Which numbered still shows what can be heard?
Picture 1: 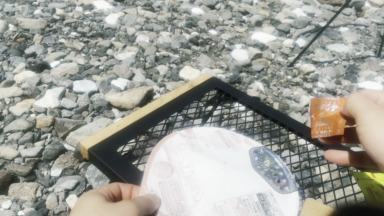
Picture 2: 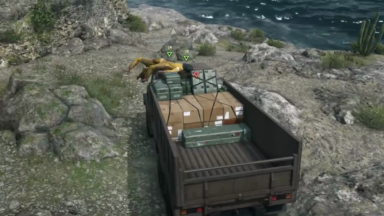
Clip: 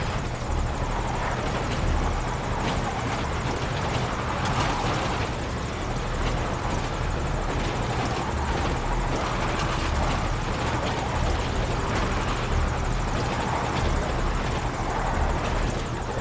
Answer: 2